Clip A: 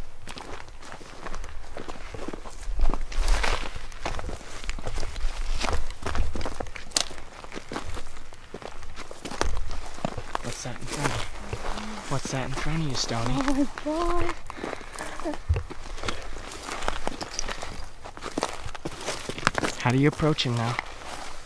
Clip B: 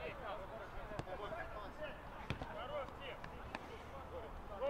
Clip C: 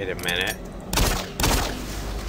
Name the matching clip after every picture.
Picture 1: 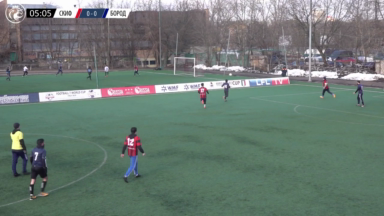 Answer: B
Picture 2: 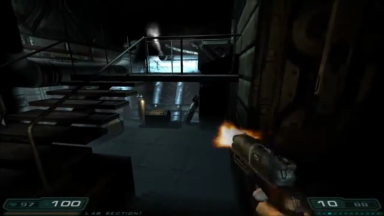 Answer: C